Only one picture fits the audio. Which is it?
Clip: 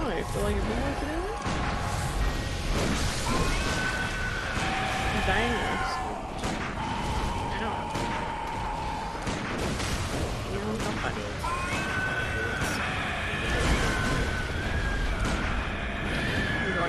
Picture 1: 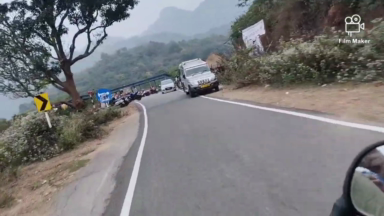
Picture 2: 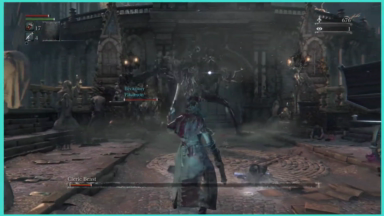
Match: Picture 2